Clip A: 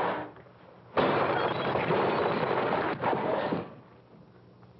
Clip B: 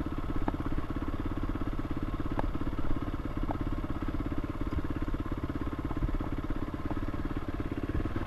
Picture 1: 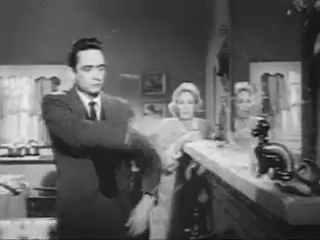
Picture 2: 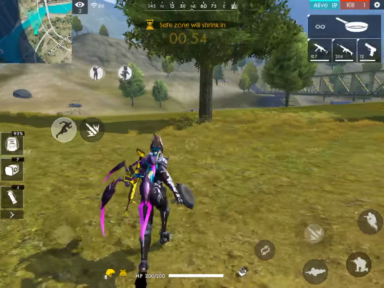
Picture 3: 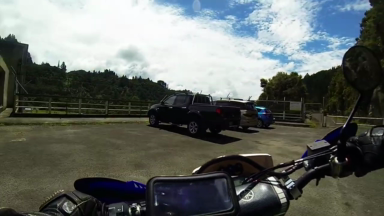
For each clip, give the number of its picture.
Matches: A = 1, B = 3